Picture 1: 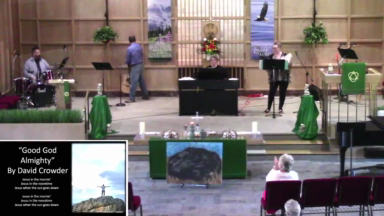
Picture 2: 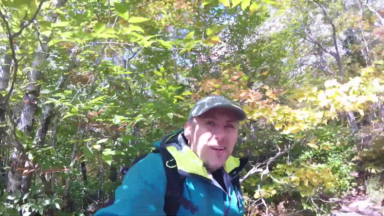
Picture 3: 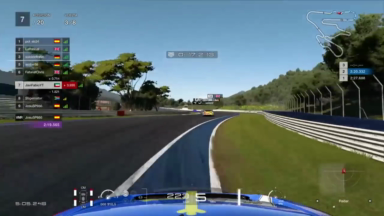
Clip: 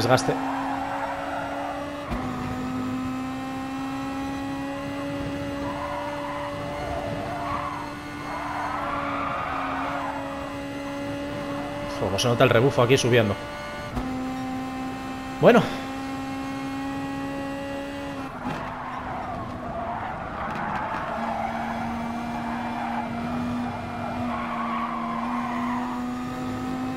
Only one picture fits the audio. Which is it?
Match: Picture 3